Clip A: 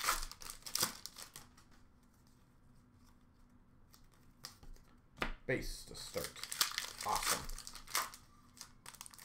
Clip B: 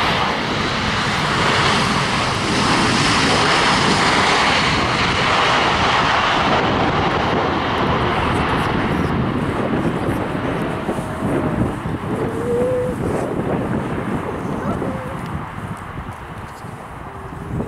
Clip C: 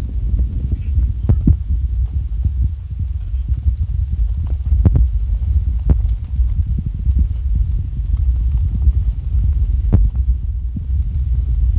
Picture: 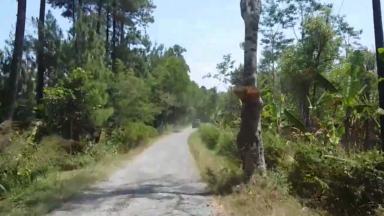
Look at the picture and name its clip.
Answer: C